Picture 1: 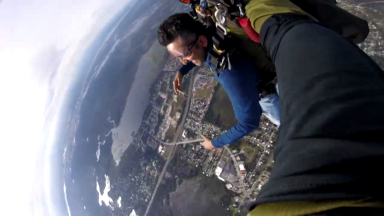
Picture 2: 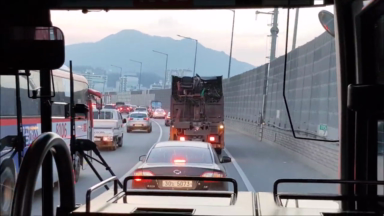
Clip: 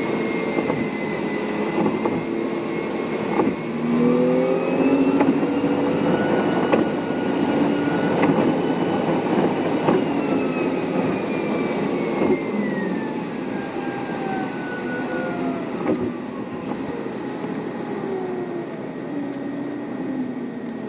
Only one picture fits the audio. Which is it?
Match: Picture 2